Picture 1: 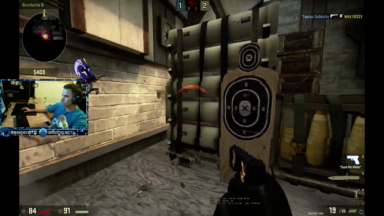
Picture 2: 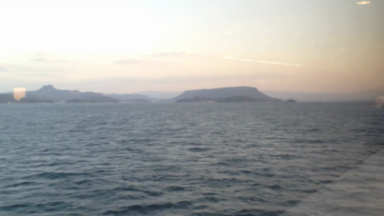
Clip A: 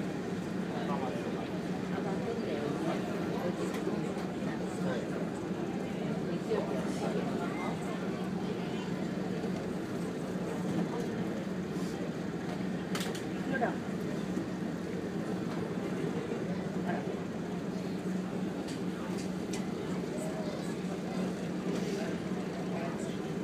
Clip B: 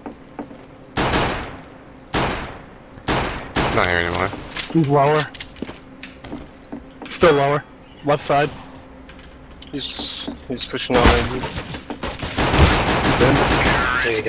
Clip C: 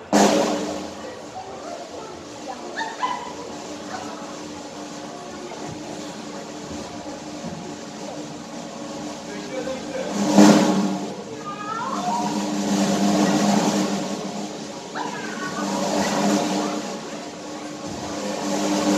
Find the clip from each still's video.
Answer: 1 B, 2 A